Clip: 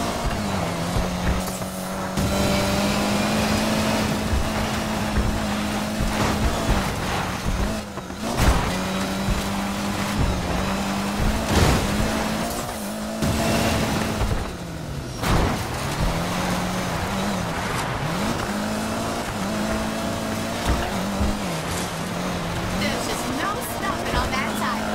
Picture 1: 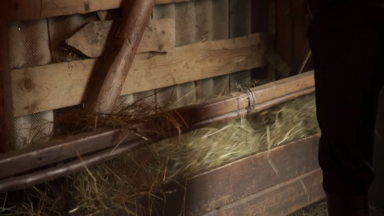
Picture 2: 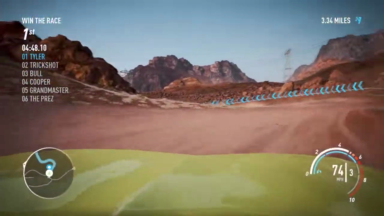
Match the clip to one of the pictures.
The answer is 2